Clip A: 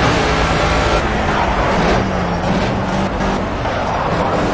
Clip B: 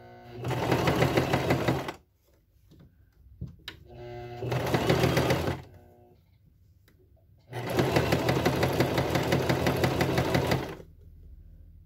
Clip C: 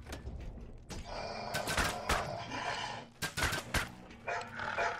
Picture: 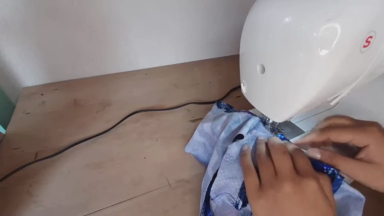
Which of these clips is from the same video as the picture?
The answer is B